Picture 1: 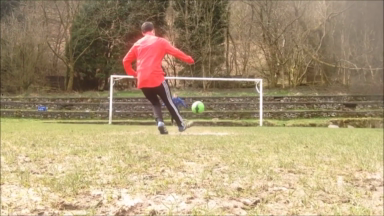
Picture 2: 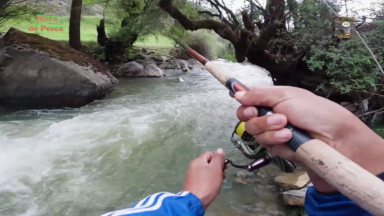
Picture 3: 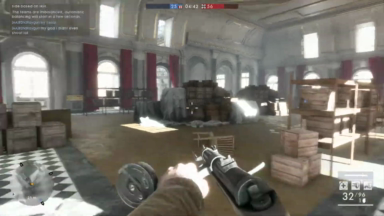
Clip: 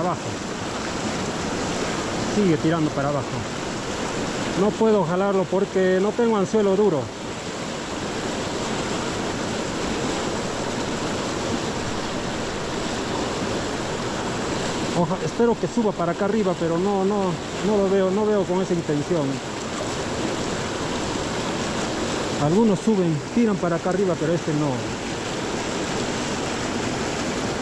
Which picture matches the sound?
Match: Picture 2